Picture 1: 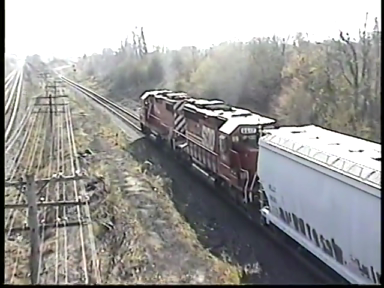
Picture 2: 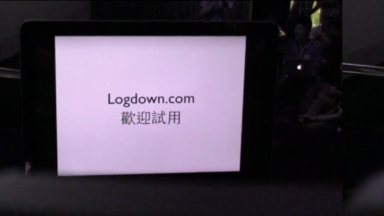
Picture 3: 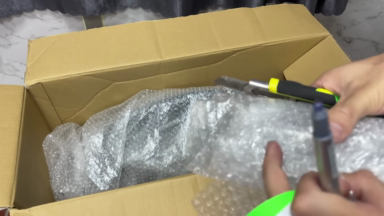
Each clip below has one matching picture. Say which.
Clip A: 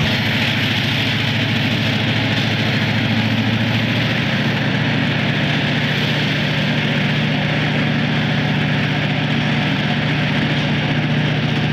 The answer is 1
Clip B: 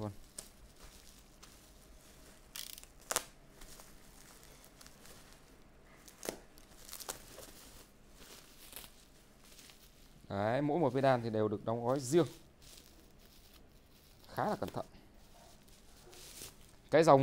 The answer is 3